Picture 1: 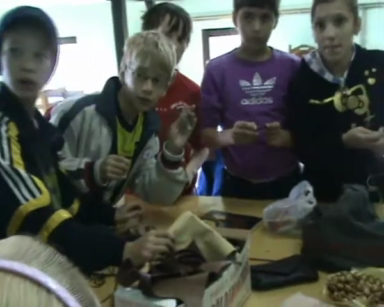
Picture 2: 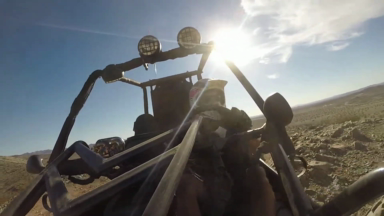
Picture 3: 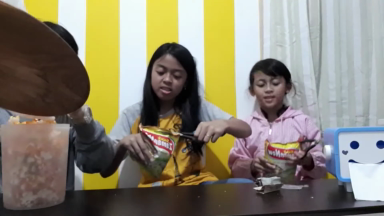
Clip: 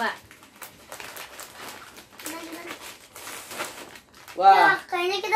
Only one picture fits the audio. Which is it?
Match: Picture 3